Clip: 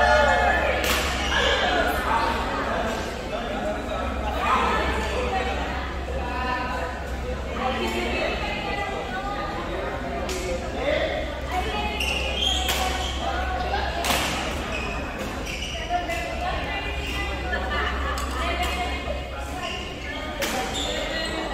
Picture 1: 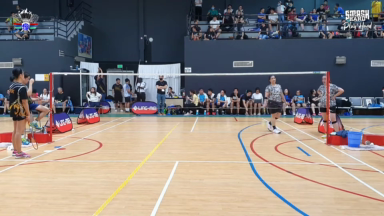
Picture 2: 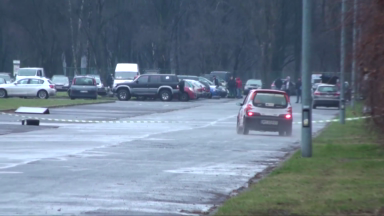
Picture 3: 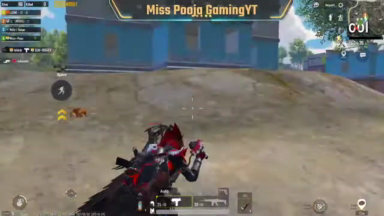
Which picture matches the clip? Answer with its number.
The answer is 1